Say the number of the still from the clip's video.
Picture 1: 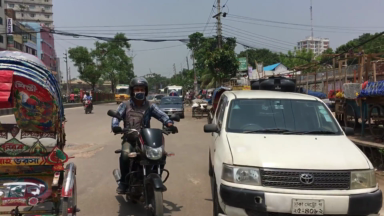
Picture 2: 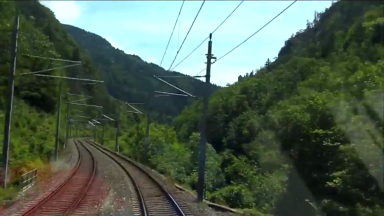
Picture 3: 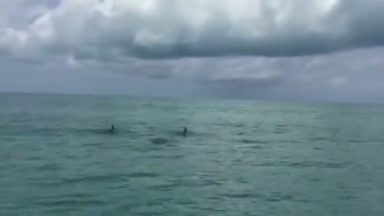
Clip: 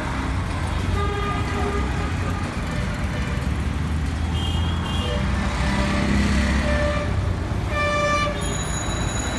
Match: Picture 1